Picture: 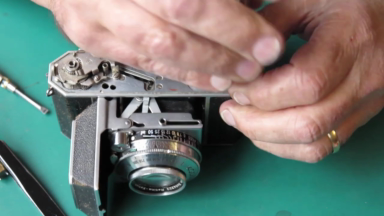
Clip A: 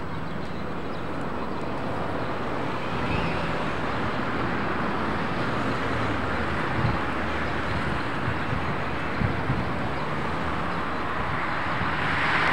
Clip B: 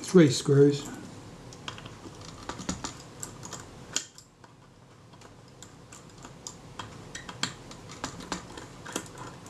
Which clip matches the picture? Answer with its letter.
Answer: B